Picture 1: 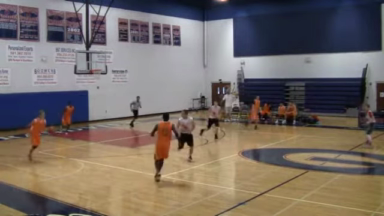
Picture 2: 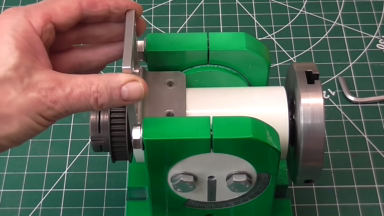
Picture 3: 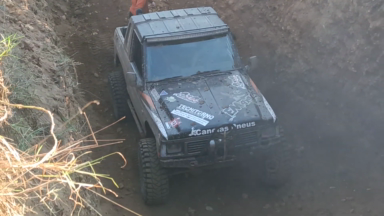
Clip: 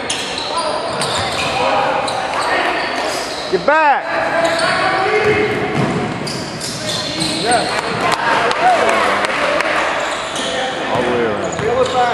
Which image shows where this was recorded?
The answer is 1